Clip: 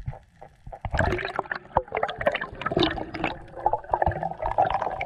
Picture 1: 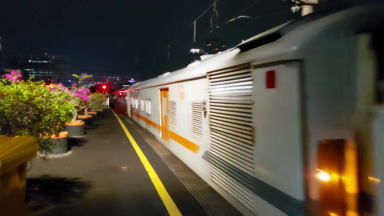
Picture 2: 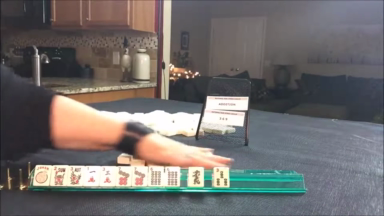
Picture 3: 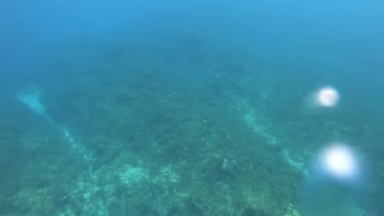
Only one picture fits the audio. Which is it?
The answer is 3